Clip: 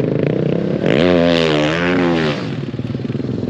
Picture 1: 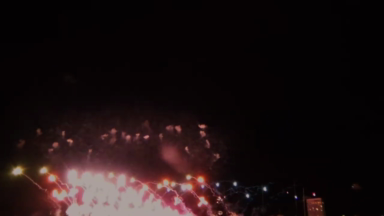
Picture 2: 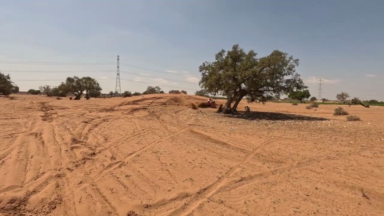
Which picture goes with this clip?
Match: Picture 2